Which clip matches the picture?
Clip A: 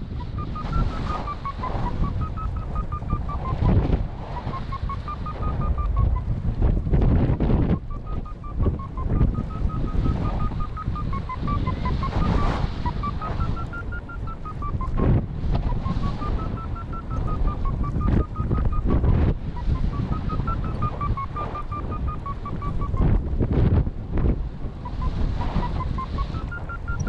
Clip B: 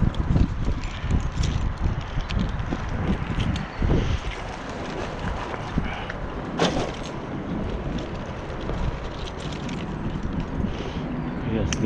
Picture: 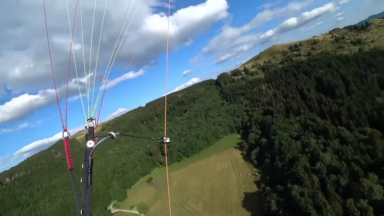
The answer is A